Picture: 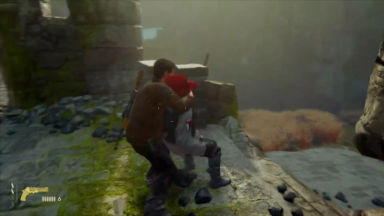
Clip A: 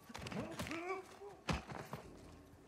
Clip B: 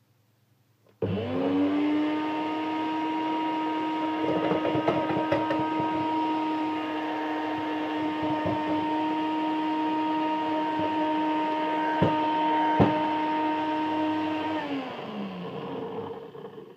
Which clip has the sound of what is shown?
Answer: A